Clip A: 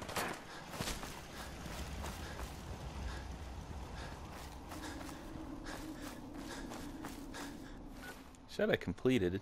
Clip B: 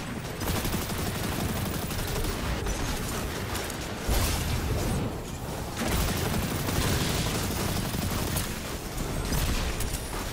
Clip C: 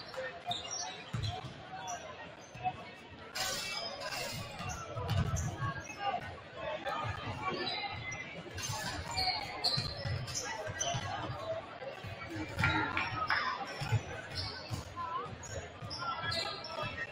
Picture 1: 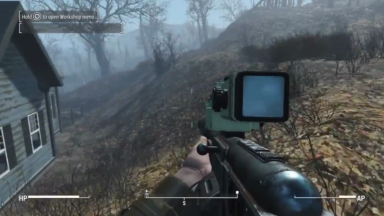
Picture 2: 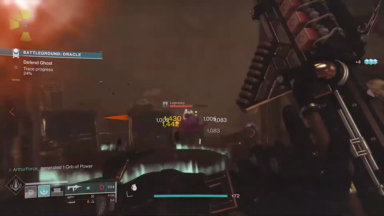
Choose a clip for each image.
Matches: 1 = A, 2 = B